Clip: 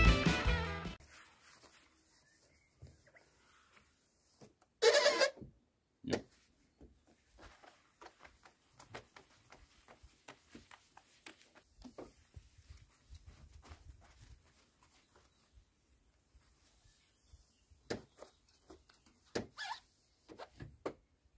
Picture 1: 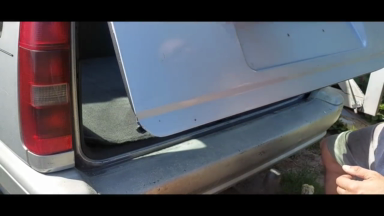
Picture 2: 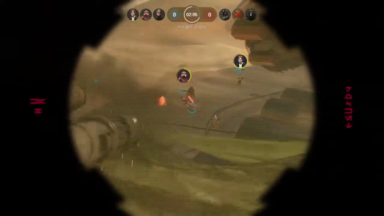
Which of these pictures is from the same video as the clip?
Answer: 1